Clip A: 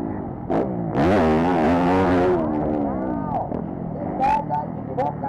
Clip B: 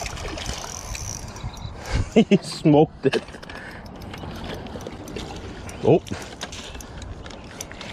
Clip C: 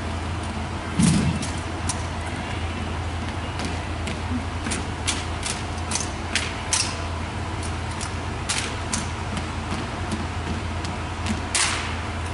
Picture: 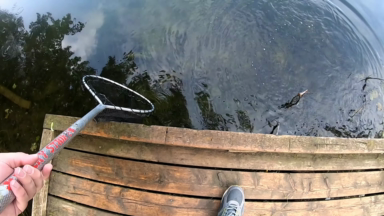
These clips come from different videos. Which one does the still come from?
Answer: B